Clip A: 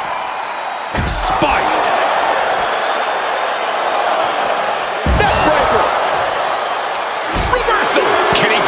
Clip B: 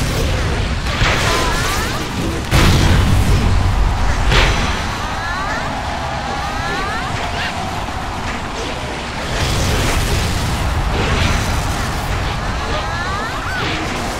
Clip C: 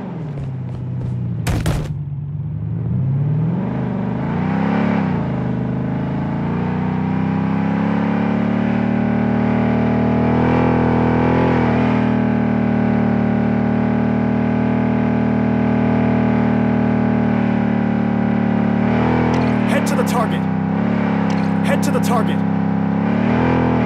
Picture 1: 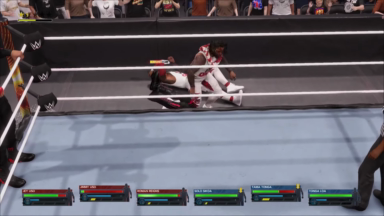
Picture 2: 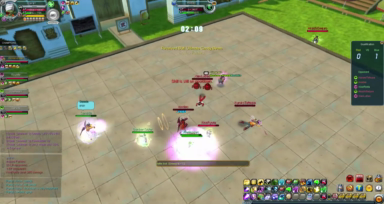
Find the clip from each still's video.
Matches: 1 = A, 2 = B